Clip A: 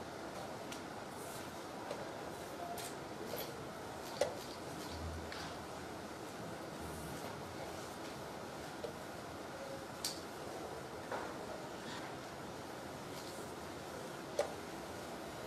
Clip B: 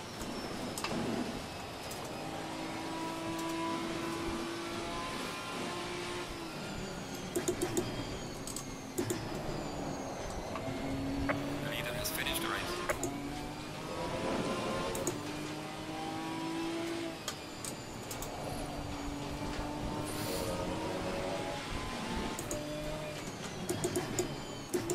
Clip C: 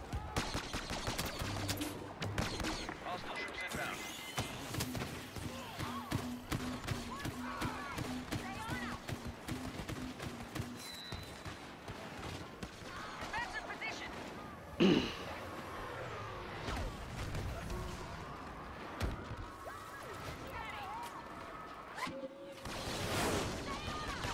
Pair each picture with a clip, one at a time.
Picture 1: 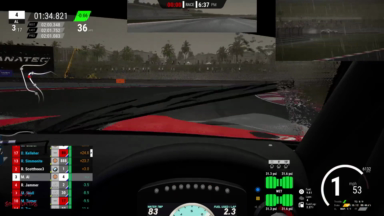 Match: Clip B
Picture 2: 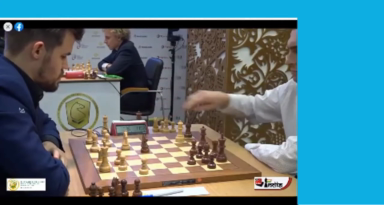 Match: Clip A